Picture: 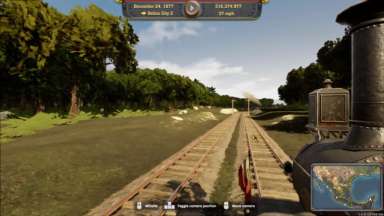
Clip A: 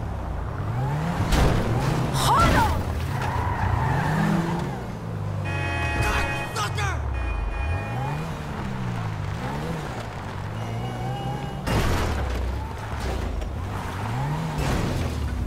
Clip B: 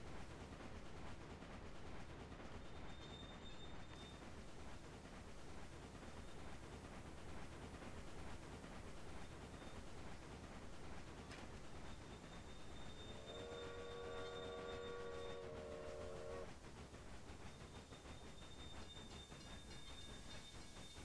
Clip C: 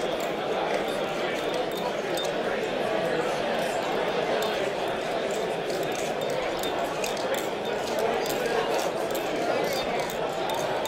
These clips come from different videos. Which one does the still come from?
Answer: B